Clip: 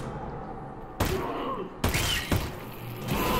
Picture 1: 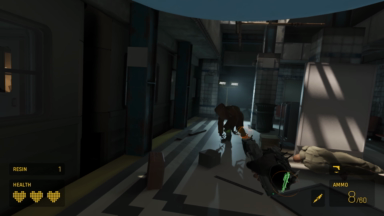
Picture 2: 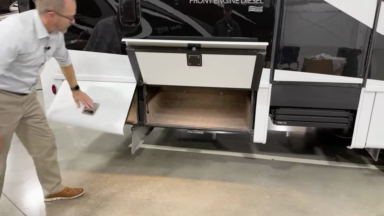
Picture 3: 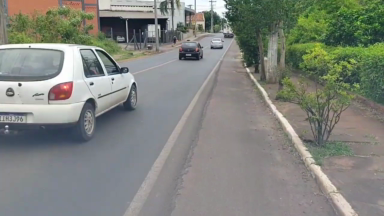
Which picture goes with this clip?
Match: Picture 1